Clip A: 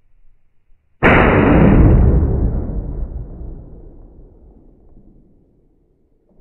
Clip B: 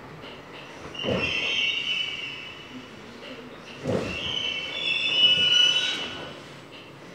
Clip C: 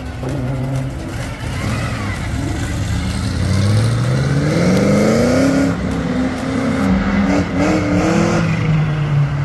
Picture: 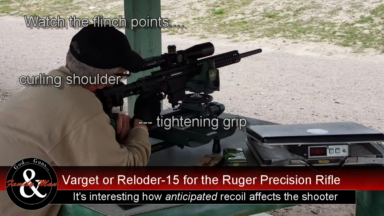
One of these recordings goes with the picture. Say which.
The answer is A